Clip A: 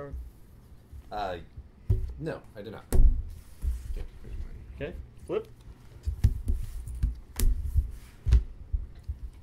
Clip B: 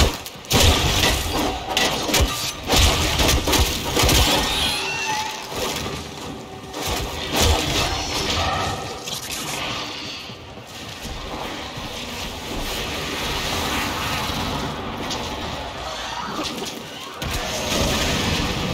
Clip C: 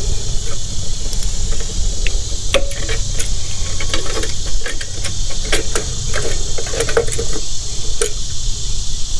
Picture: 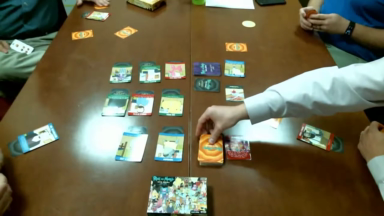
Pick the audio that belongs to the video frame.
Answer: A